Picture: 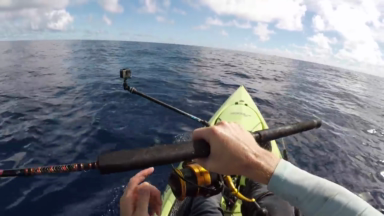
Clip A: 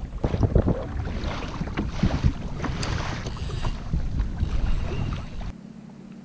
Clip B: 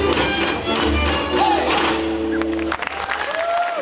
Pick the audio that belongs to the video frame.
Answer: A